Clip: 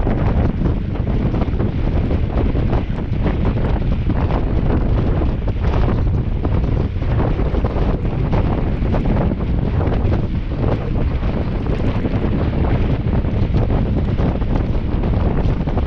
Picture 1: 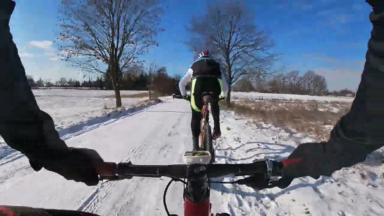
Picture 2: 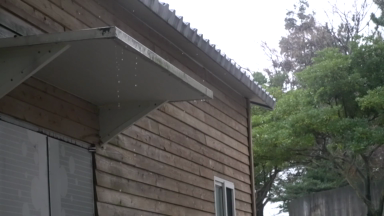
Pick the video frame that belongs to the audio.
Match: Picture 1